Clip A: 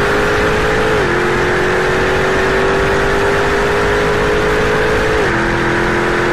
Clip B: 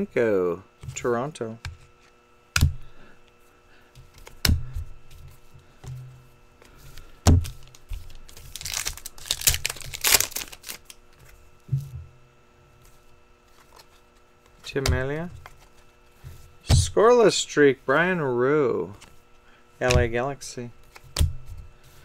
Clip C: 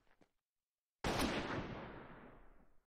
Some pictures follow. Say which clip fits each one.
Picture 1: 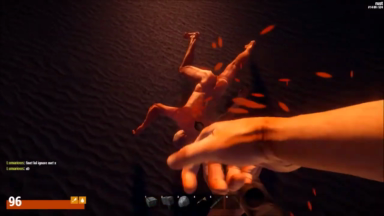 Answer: C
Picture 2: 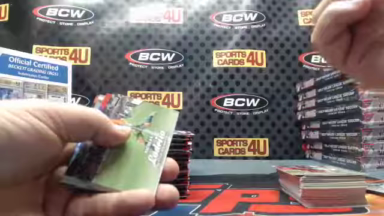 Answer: B